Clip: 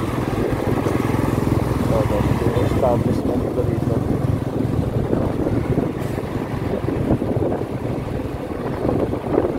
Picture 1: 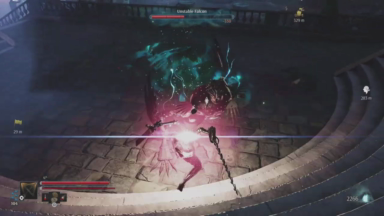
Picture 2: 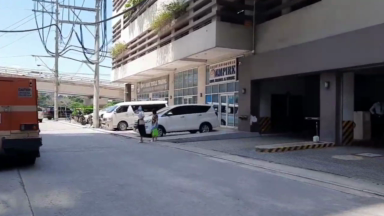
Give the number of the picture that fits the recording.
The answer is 2